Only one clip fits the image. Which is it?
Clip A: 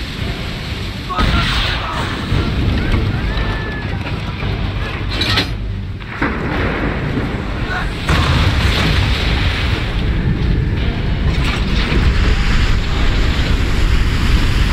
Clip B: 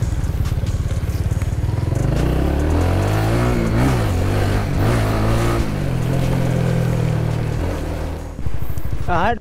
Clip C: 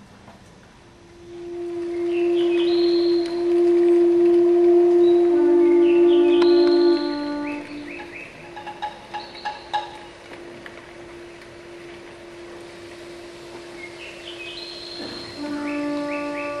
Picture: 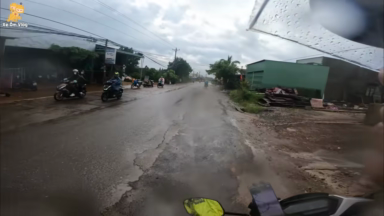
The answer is B